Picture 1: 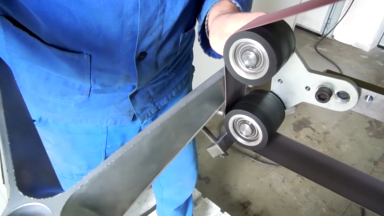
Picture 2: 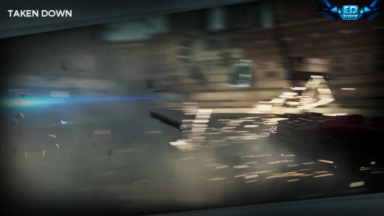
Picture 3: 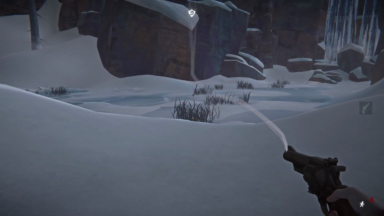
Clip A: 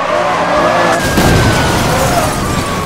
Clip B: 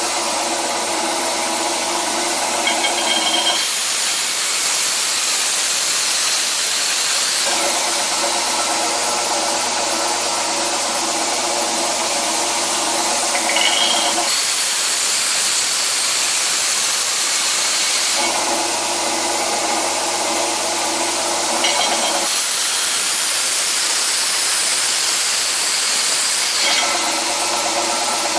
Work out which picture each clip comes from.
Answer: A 2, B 1